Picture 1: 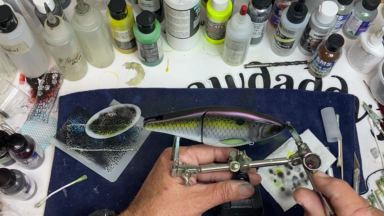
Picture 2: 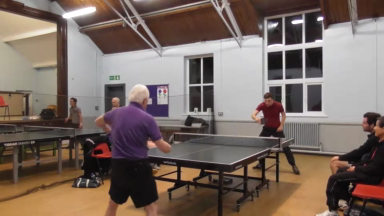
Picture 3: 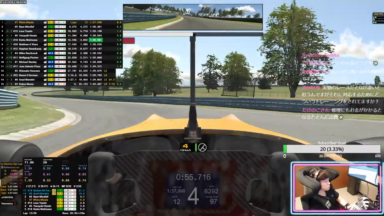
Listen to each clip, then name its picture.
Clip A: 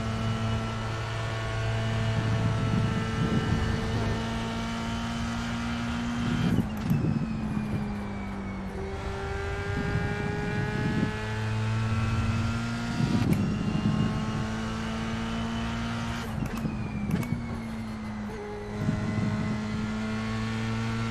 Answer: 3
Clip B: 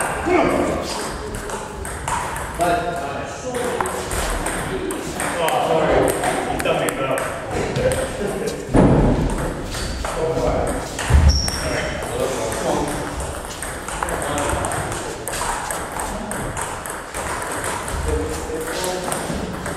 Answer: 2